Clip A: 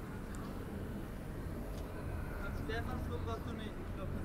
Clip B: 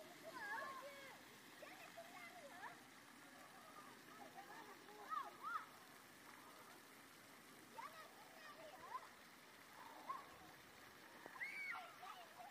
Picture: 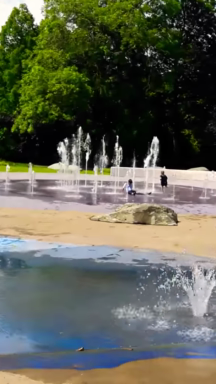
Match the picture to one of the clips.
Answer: B